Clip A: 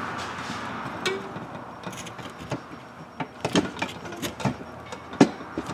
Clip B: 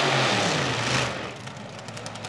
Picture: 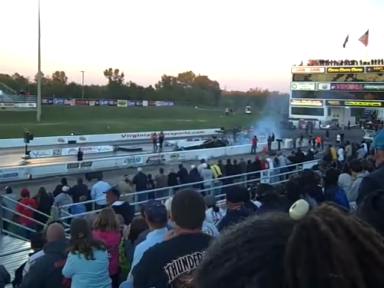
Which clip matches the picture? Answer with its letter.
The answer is B